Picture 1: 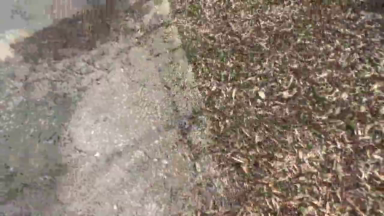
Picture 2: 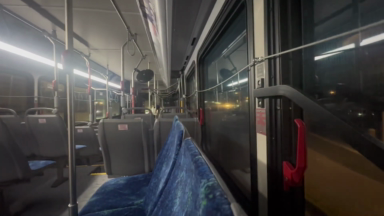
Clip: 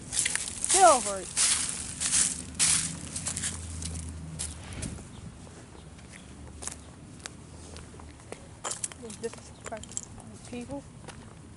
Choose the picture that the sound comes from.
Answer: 1